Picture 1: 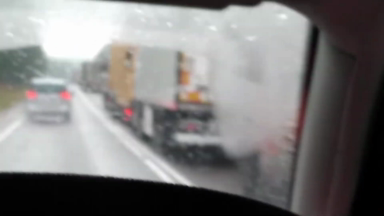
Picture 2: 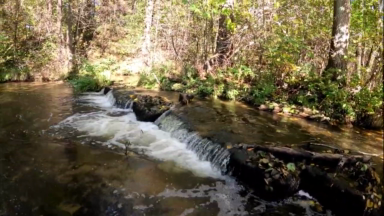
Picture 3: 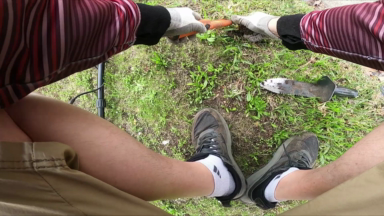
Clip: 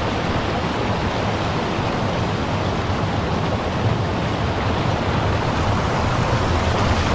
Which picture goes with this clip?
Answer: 2